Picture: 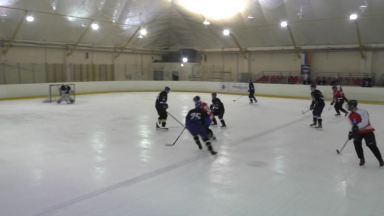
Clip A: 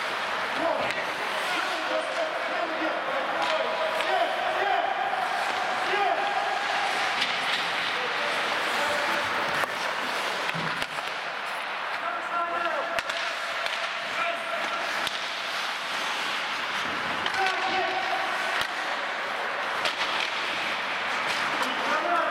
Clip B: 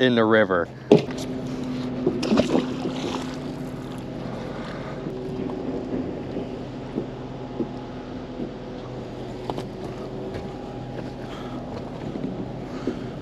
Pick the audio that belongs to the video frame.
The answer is A